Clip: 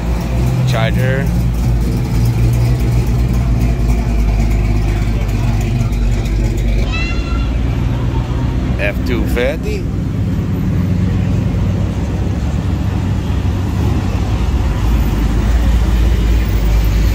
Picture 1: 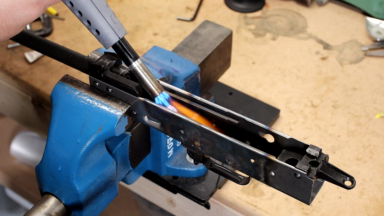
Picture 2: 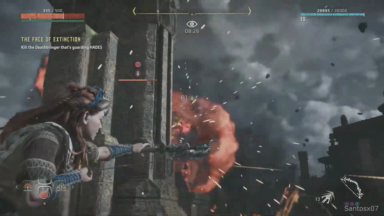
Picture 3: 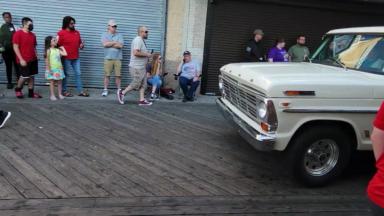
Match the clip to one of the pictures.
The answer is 3